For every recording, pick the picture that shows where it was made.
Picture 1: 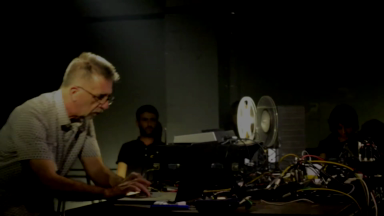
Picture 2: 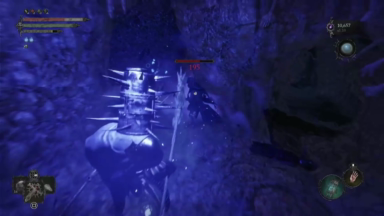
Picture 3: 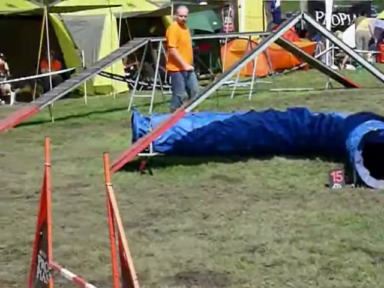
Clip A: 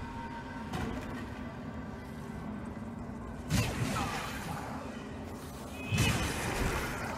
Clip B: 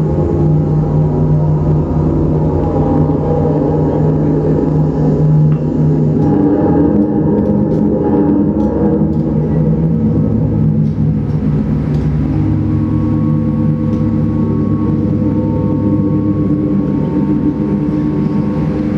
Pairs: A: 2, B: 1